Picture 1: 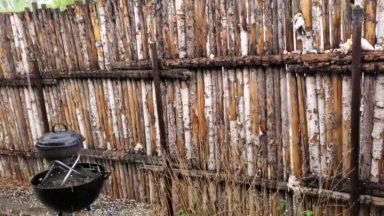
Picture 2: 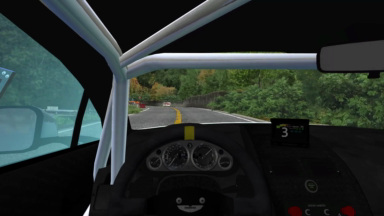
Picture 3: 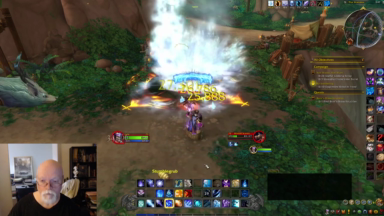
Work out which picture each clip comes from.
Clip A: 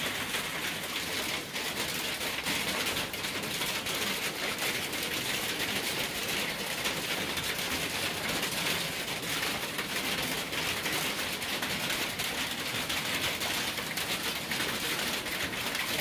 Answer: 1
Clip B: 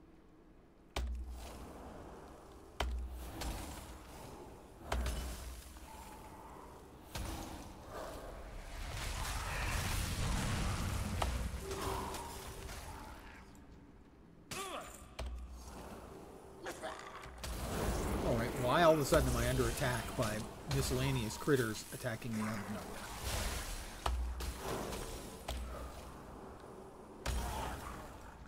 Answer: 3